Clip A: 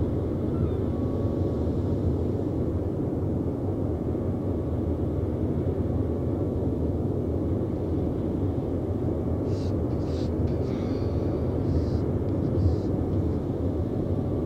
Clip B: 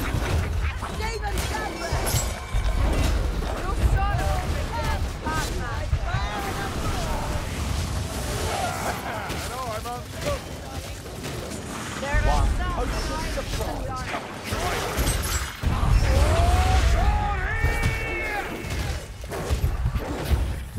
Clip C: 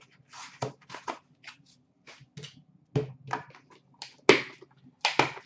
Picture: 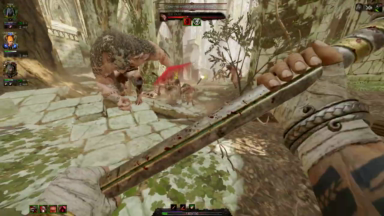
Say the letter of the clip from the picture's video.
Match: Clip B